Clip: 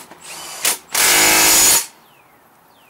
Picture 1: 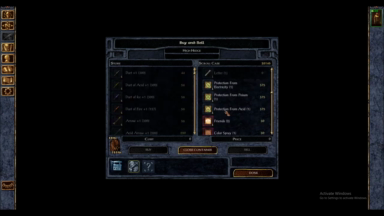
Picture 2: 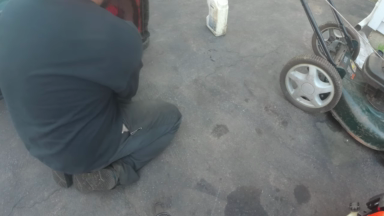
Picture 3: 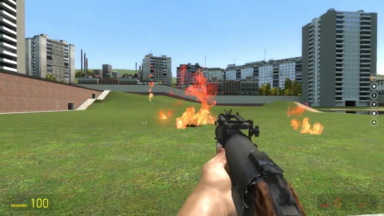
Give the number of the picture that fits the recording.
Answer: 2